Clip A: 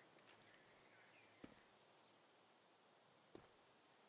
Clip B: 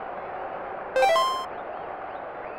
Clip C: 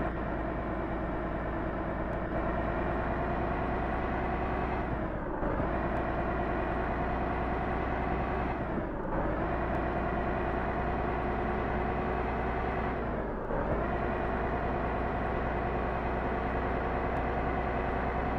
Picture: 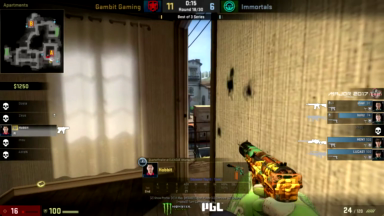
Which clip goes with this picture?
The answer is A